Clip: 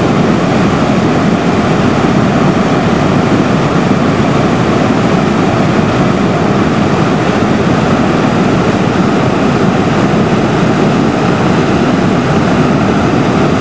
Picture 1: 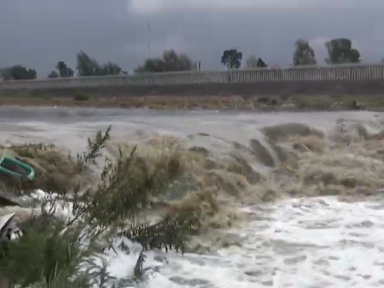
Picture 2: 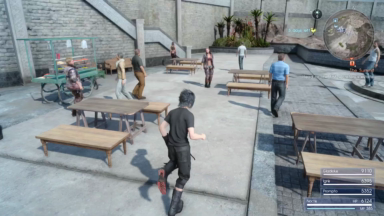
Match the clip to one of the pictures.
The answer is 1